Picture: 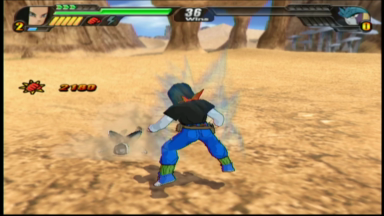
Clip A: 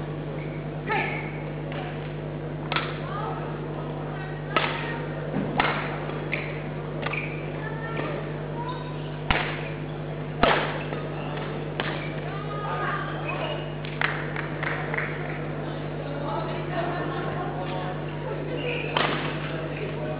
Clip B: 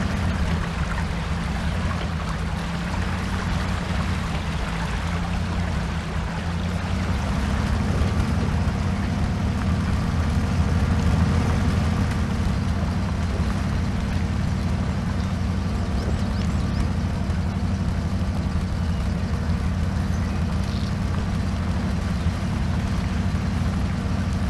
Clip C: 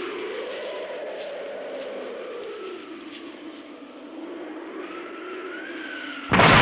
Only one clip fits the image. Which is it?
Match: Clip C